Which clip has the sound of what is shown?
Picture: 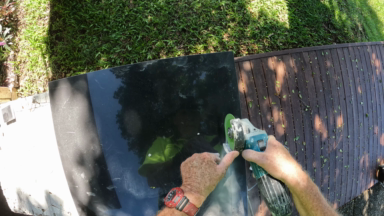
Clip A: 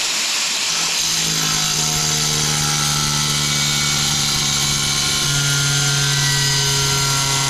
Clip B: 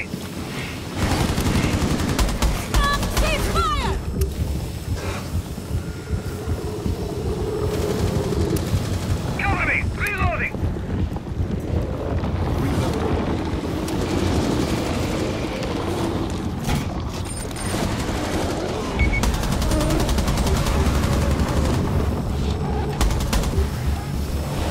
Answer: A